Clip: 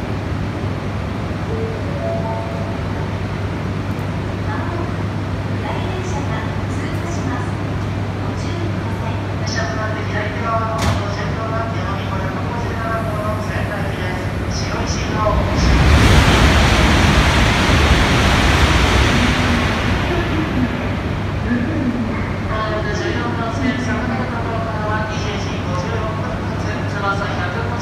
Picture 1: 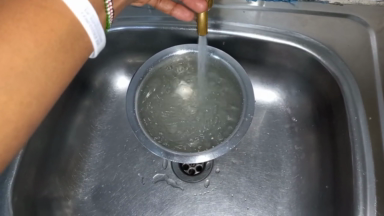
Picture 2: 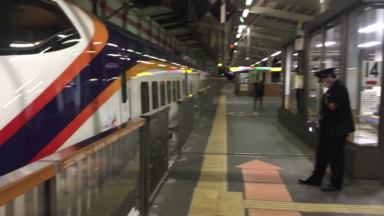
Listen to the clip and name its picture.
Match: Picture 2